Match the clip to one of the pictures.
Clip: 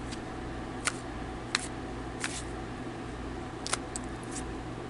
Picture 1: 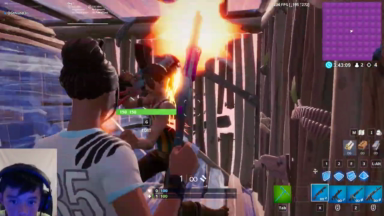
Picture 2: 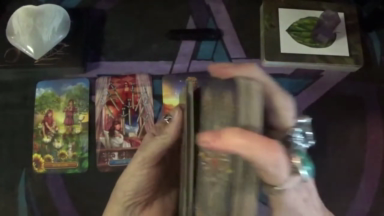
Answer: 2